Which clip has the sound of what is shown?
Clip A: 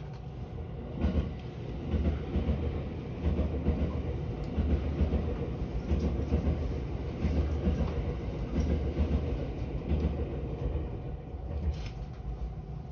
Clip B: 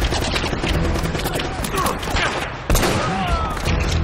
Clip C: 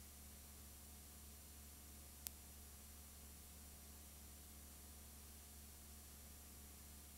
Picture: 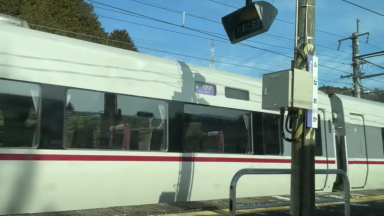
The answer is A